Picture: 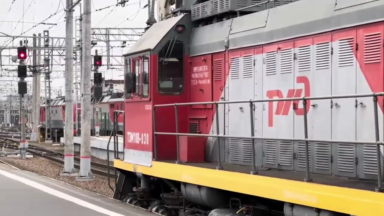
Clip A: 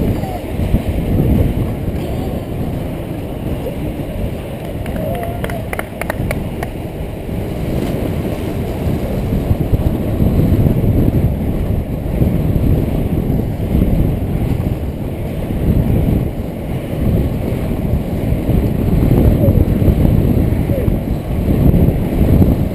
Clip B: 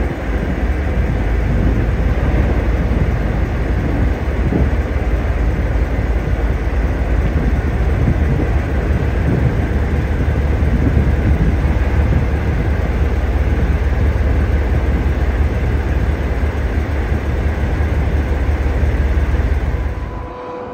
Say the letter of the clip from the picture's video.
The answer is B